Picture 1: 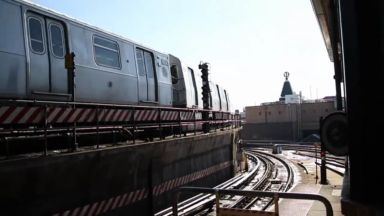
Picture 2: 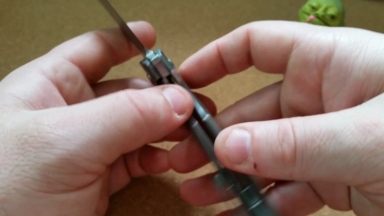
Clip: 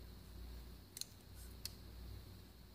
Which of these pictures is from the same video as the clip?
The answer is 2